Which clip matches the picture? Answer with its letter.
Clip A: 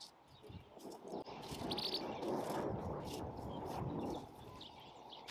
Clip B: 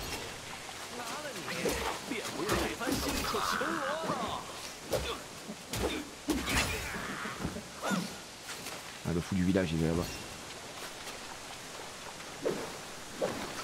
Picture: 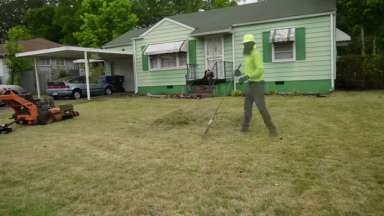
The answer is A